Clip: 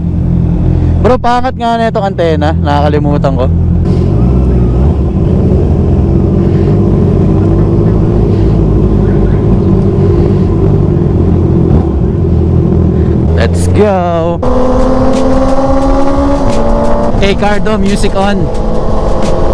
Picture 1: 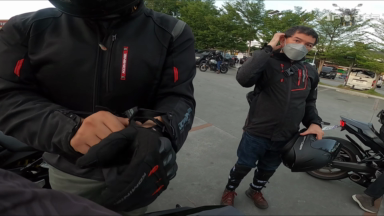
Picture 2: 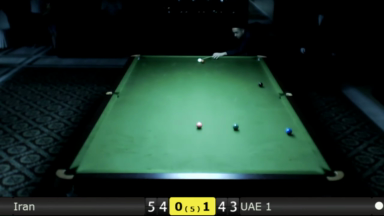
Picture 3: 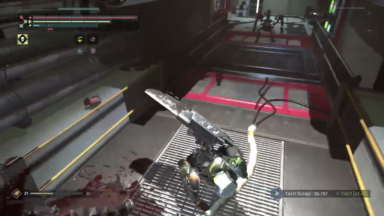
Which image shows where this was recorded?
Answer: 1